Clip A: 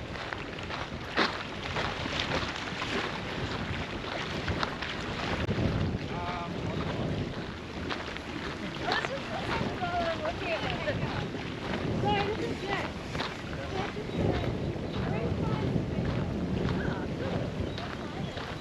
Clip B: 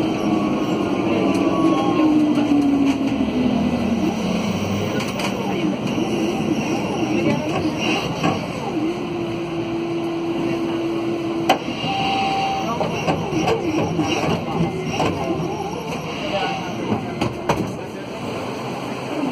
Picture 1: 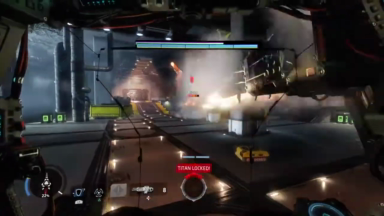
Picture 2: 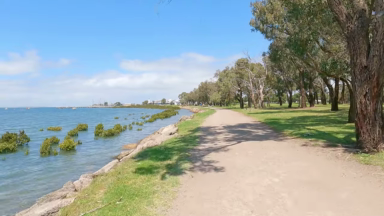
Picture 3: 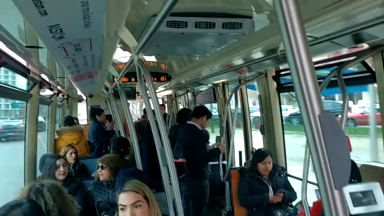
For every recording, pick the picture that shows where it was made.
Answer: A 2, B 3